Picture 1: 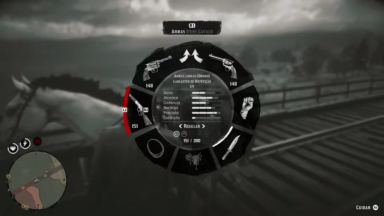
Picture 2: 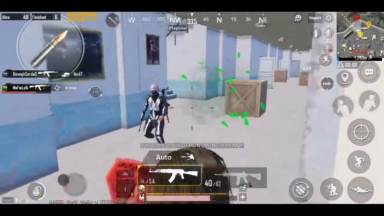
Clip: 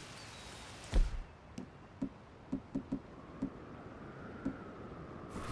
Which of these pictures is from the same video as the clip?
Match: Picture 1